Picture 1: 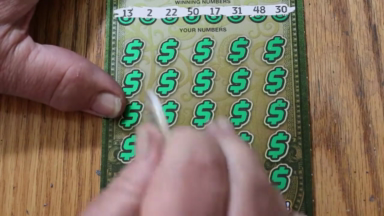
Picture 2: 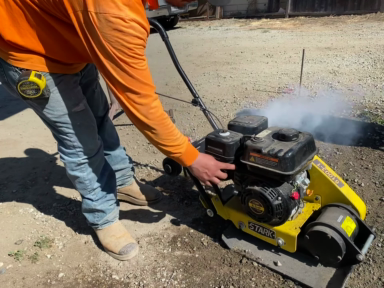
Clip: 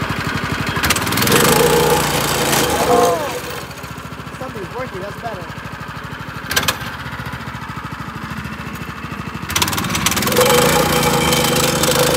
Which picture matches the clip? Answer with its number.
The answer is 2